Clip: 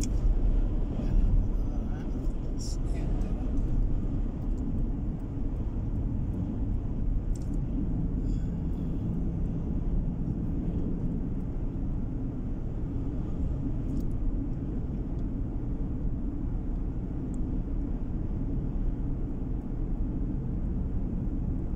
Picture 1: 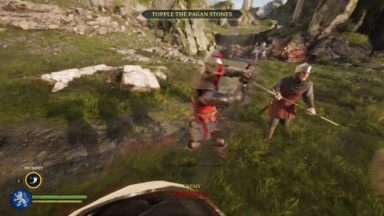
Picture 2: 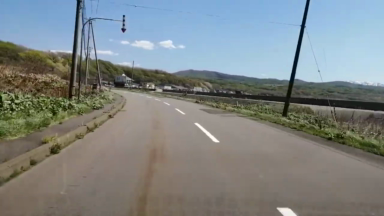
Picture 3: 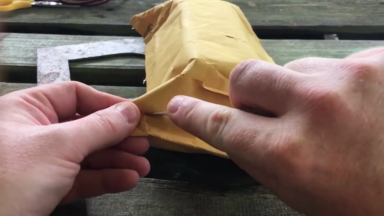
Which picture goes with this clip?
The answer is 2